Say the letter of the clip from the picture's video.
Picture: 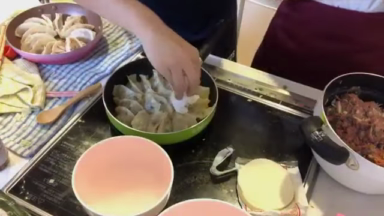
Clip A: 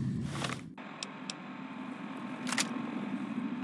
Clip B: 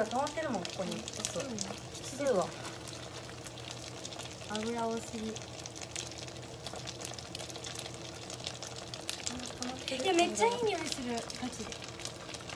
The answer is B